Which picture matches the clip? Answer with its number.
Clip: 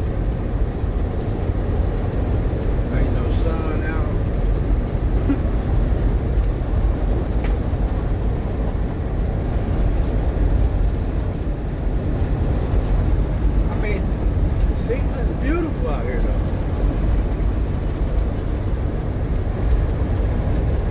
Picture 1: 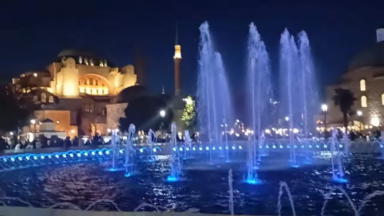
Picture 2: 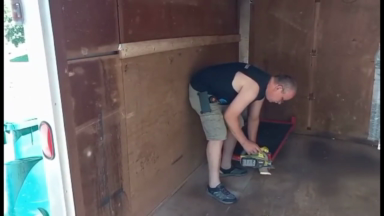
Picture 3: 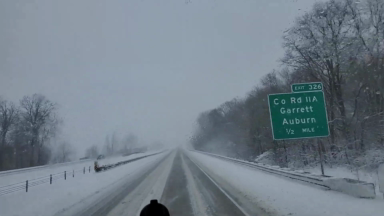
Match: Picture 3